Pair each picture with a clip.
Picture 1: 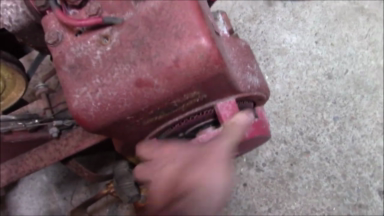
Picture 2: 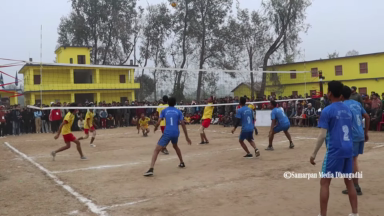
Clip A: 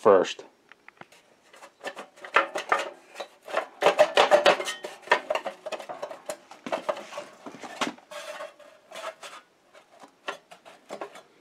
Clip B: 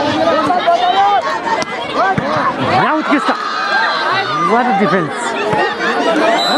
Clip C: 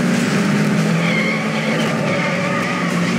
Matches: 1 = A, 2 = B